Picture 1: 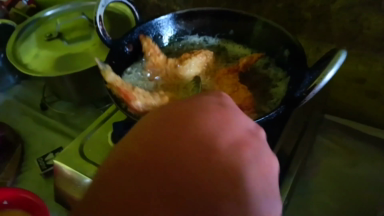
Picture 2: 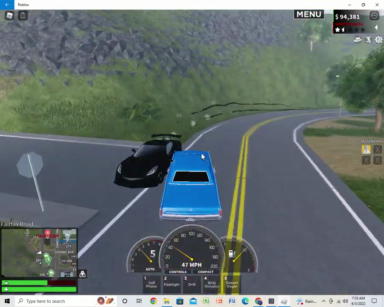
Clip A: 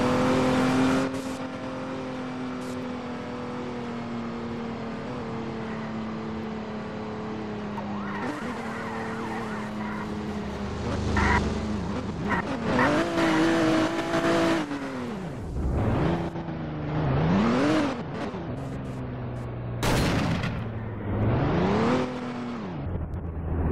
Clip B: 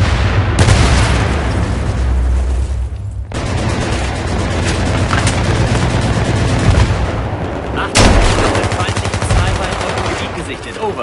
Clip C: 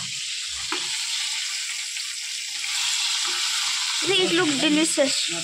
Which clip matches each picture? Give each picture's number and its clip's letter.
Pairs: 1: C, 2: A